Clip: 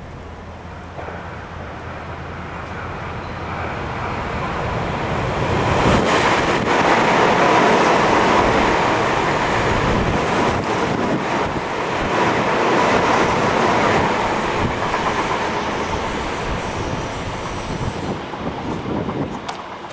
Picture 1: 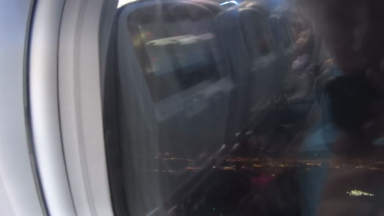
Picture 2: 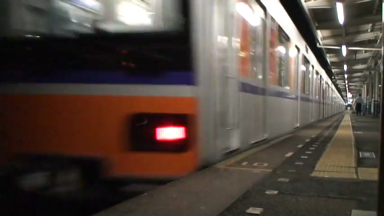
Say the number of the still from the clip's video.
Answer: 2